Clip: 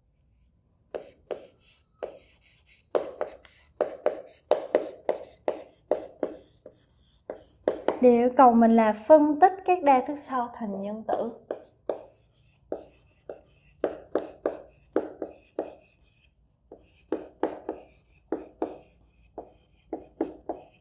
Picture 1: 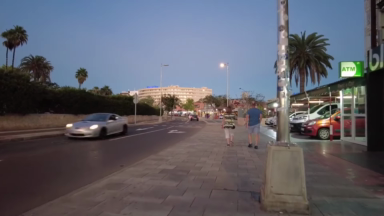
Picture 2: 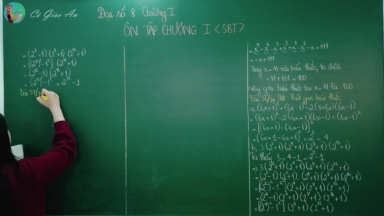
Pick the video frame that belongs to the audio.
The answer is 2